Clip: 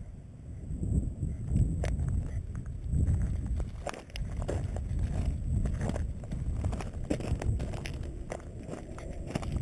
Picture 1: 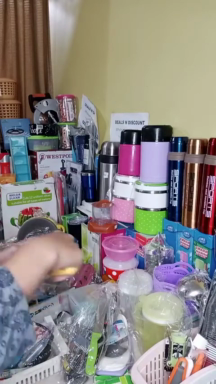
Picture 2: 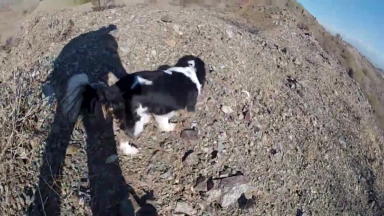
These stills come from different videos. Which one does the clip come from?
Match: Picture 2